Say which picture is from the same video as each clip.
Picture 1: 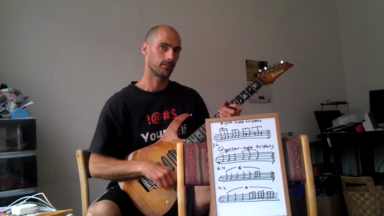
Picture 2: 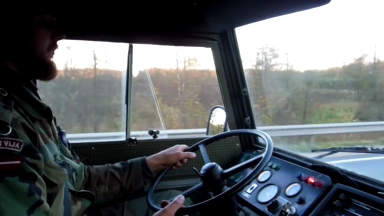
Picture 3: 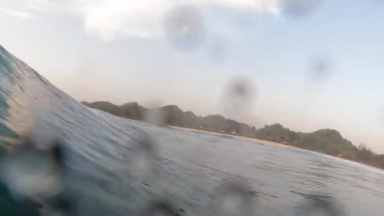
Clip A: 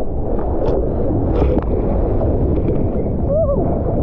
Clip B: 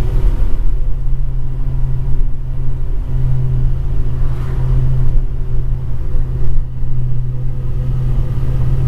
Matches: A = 3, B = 2